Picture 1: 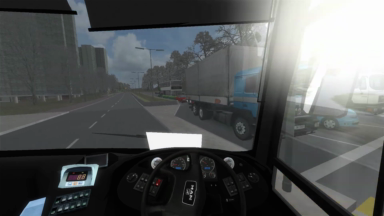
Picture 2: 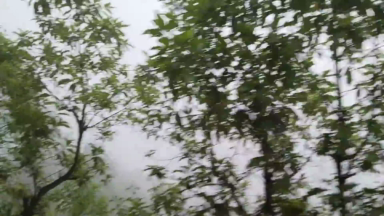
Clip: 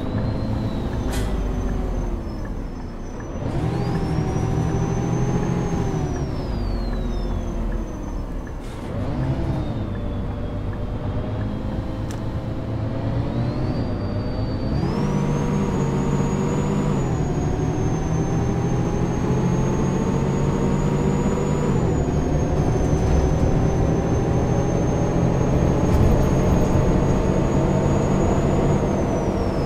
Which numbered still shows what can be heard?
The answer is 1